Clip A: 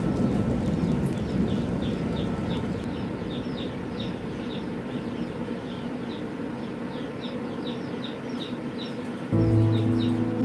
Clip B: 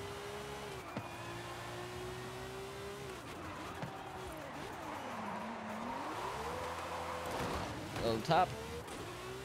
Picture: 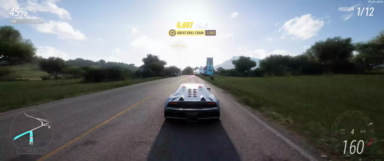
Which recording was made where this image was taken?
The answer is B